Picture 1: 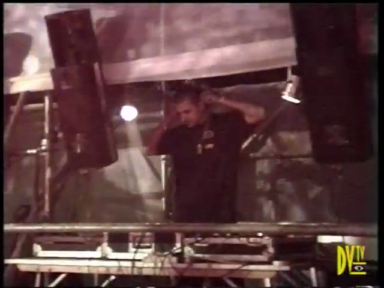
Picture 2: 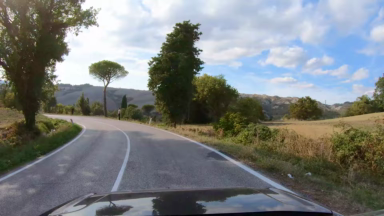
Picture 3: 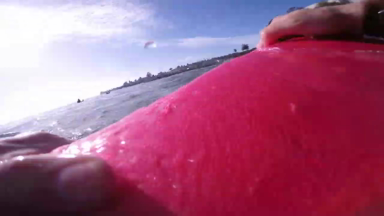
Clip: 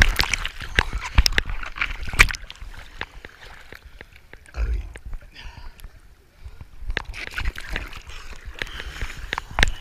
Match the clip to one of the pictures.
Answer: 3